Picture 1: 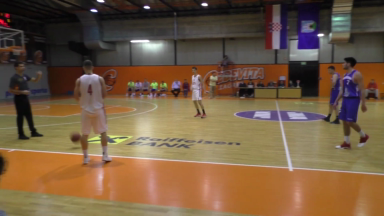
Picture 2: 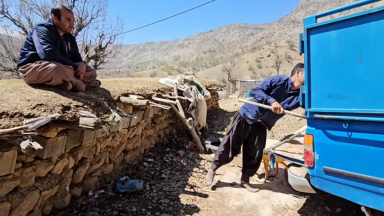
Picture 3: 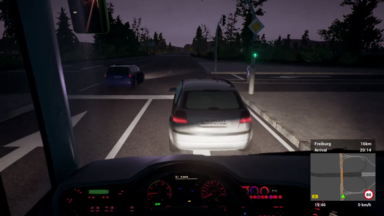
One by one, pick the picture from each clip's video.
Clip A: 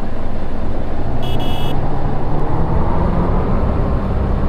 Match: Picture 3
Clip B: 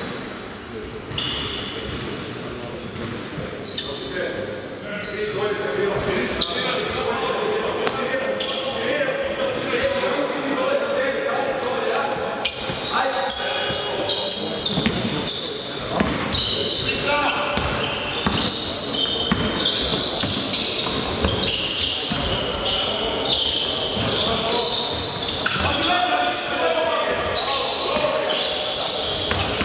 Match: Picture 1